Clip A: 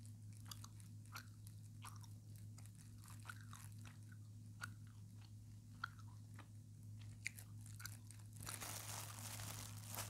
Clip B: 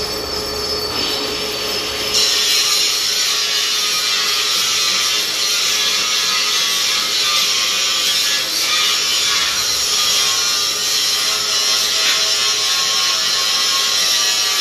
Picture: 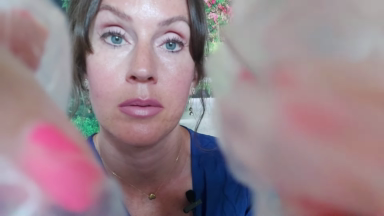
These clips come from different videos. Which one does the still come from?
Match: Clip A